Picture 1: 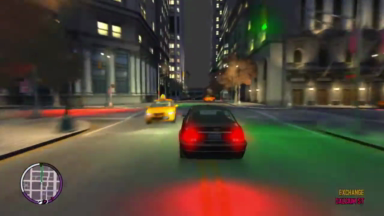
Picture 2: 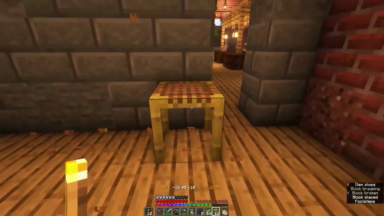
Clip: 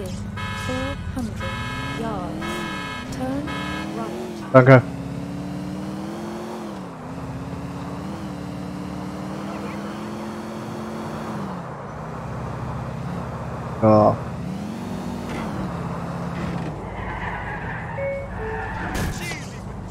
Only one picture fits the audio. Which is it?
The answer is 1